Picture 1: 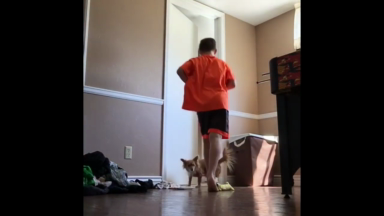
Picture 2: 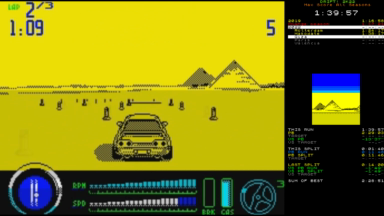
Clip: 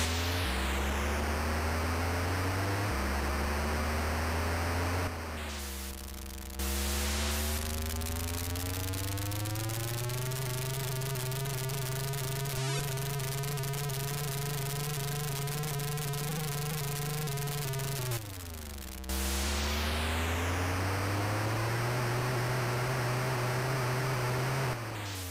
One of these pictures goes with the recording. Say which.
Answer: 2